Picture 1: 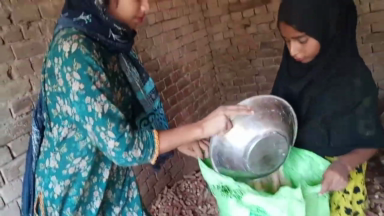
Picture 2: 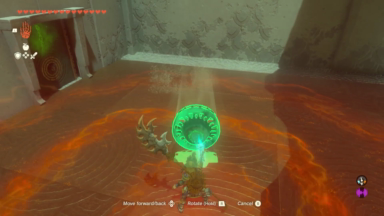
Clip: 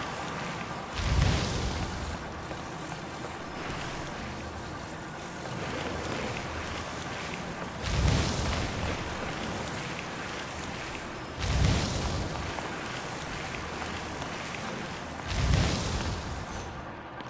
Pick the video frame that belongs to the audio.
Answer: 2